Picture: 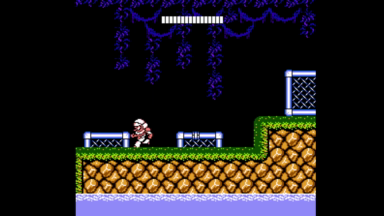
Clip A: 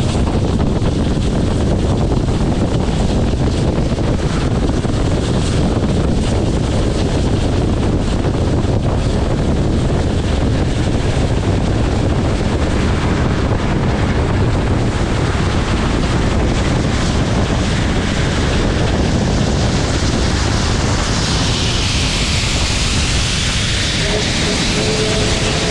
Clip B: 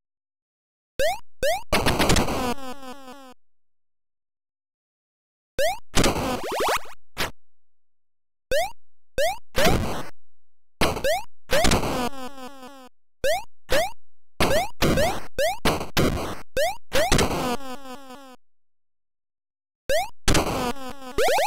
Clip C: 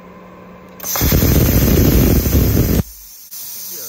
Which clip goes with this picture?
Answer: B